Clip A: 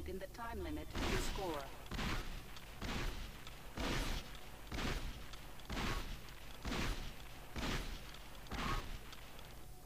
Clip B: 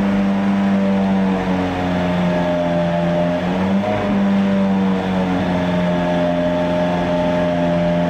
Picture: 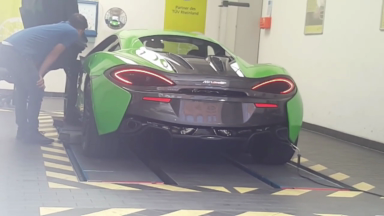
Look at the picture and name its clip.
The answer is B